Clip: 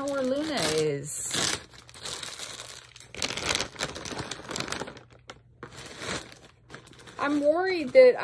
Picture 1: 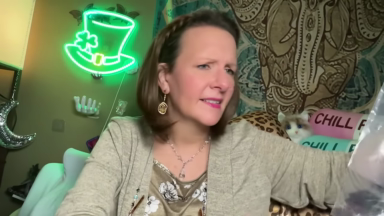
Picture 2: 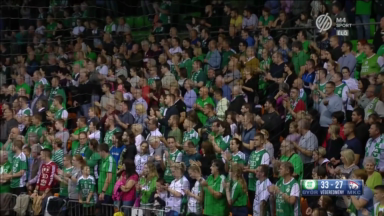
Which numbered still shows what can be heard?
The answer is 1